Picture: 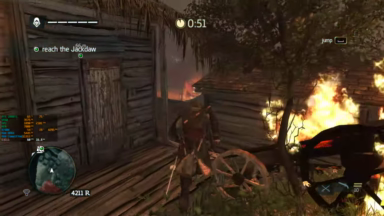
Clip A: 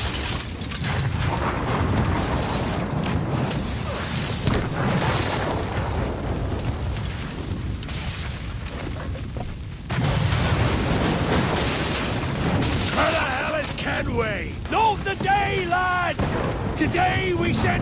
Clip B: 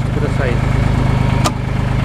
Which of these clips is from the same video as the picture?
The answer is A